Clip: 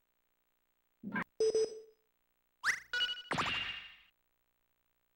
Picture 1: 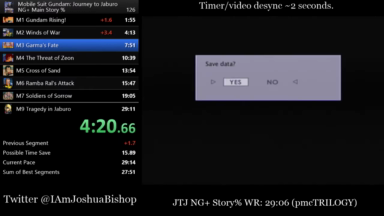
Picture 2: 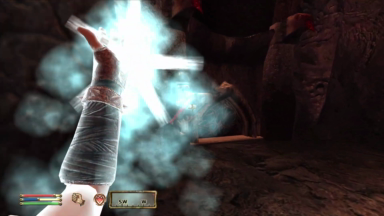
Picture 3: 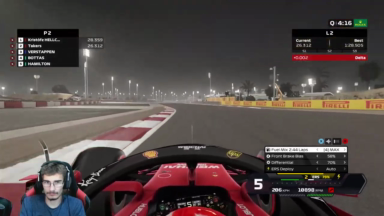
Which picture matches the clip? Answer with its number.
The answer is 1